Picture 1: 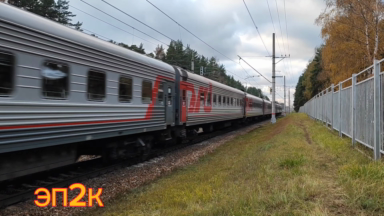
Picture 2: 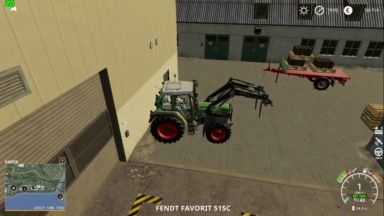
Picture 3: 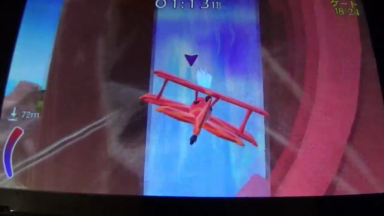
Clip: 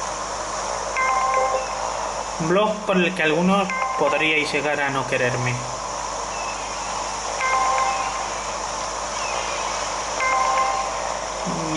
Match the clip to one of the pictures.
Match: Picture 3